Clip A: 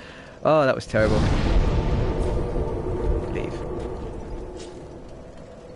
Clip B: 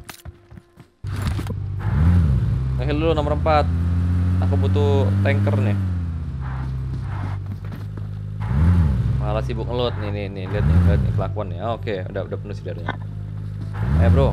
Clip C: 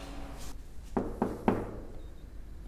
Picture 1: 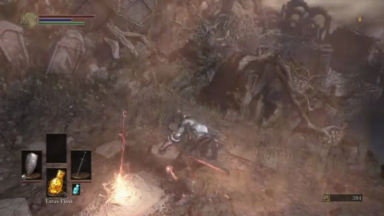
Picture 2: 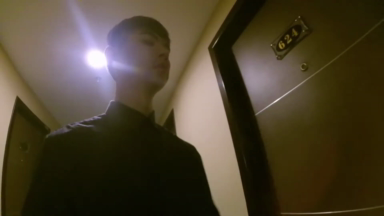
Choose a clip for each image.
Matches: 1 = A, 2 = C